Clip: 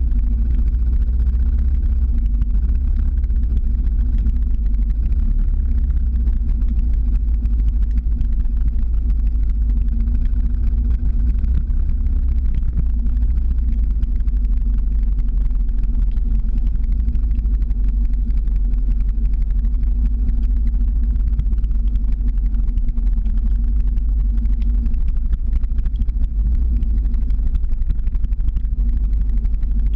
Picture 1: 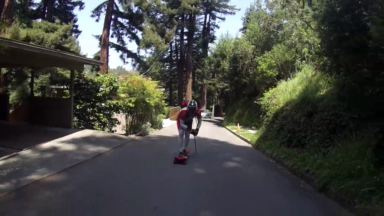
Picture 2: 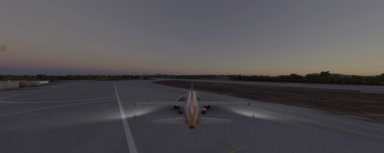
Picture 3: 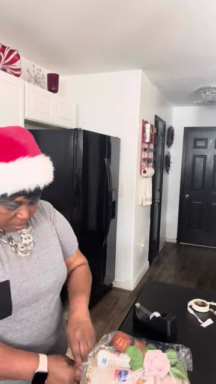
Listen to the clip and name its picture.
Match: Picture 1